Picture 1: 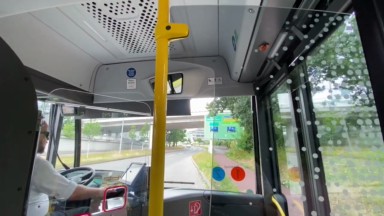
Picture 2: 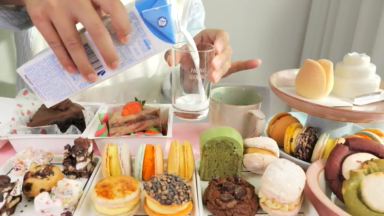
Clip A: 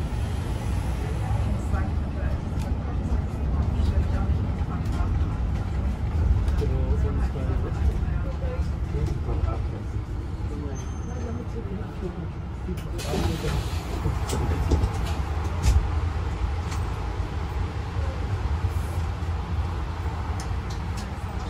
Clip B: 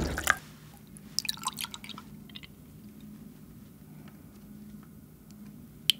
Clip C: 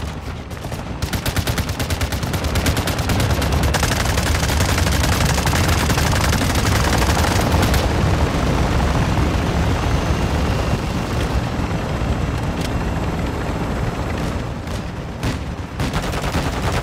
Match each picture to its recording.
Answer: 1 A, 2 B